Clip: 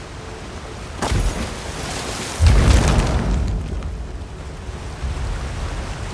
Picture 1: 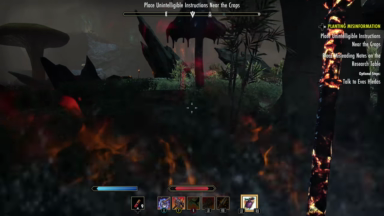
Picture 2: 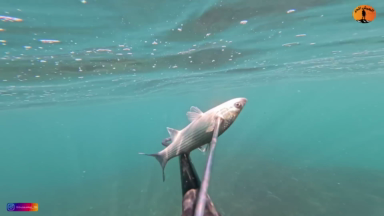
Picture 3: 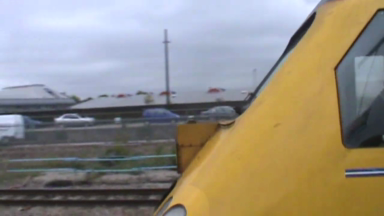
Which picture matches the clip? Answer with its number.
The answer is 1